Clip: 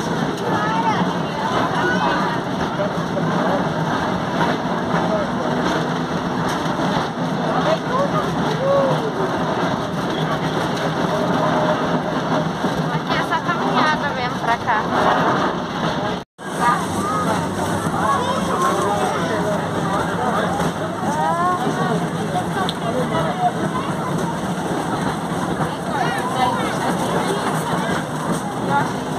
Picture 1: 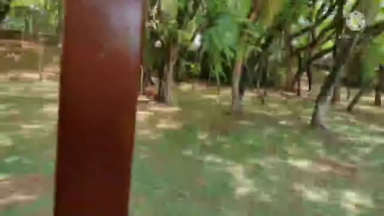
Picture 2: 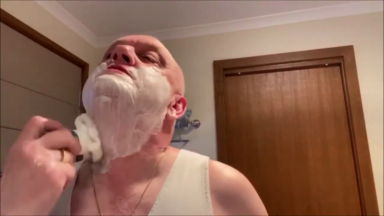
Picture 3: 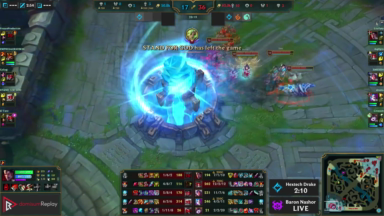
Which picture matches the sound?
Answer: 1